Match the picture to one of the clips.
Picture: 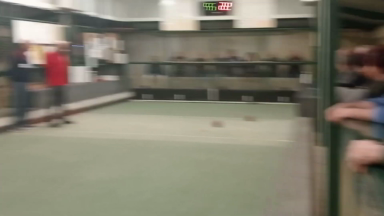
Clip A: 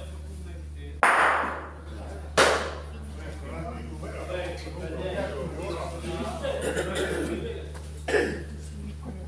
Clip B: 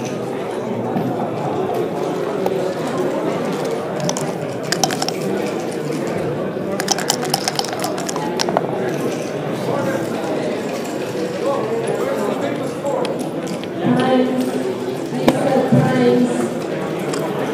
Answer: A